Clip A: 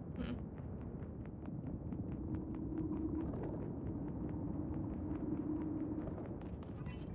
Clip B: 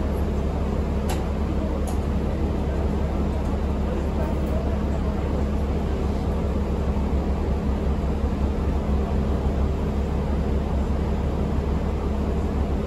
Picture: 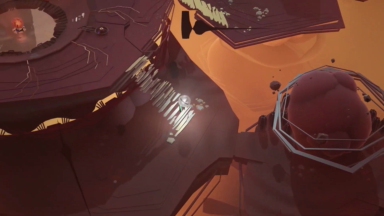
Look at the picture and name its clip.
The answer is A